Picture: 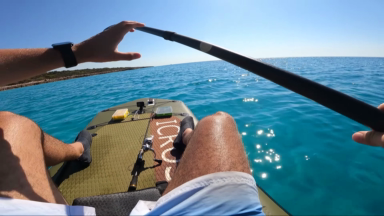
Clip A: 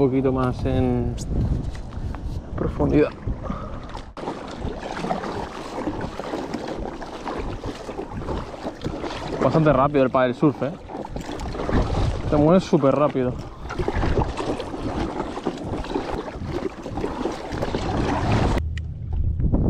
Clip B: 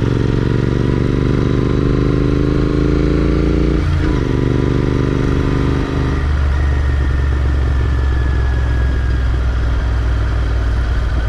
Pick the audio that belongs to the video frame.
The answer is A